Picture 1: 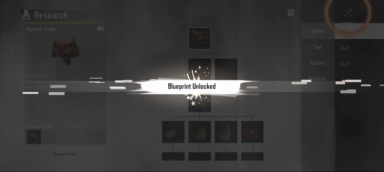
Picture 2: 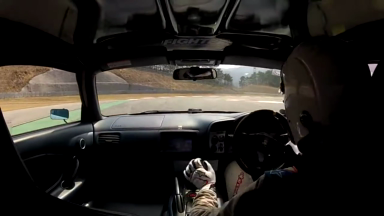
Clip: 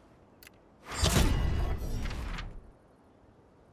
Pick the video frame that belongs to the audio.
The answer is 1